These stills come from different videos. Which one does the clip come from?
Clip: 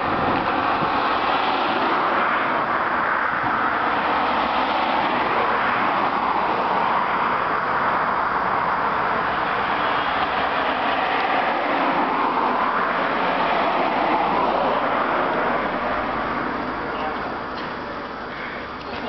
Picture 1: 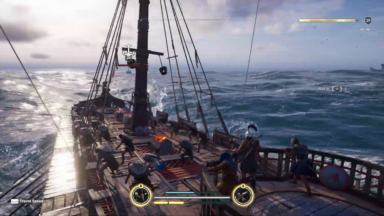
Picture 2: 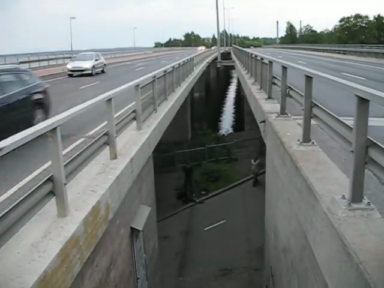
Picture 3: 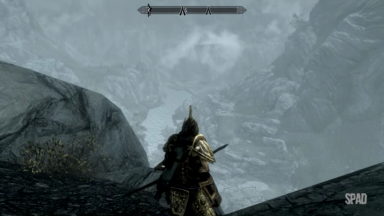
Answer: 2